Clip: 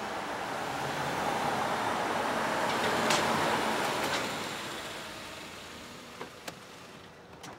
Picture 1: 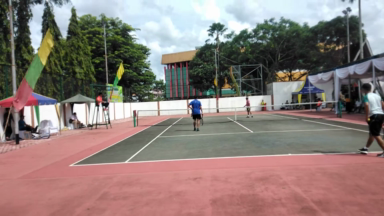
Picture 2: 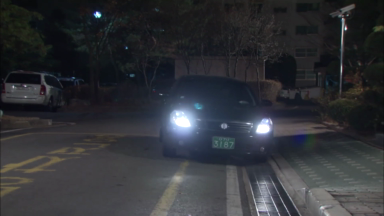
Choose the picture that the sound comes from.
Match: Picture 2